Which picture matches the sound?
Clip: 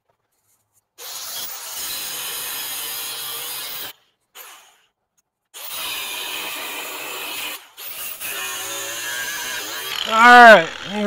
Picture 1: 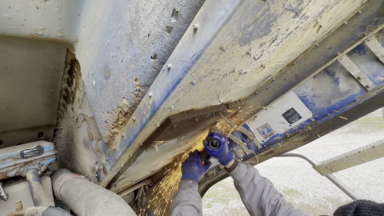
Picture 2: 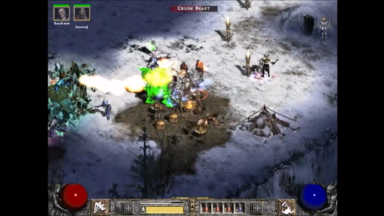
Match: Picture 1